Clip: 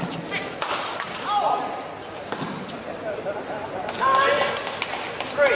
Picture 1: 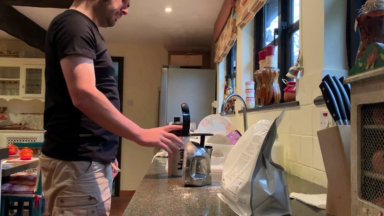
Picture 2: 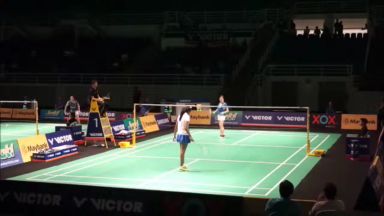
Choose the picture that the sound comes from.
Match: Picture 2